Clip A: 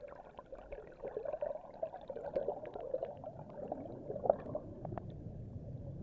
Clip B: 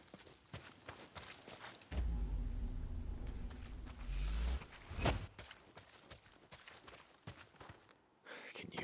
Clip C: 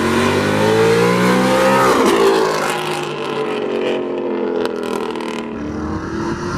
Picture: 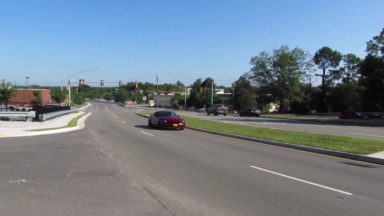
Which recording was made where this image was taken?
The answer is C